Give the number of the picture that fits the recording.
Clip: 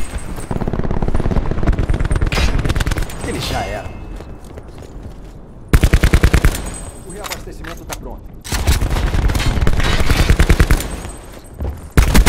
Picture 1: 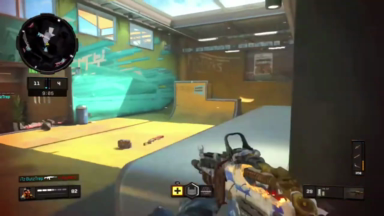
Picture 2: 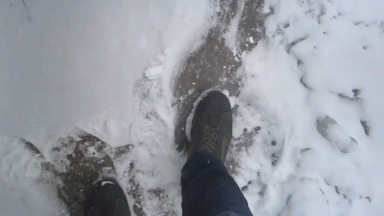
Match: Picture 1